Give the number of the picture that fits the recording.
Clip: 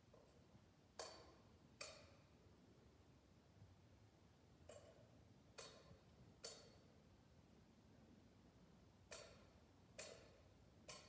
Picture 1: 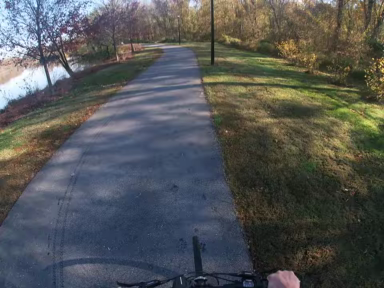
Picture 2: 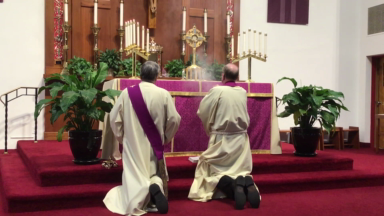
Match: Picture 2